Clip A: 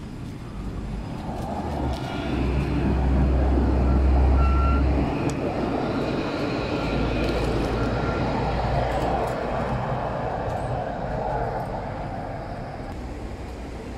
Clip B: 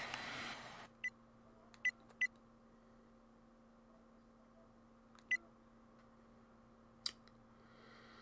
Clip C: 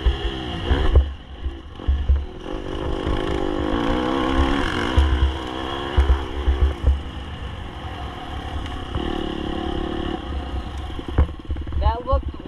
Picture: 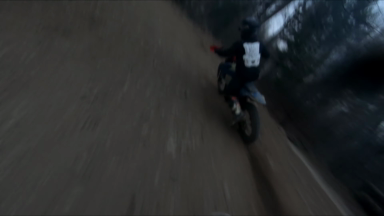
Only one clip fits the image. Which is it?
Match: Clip C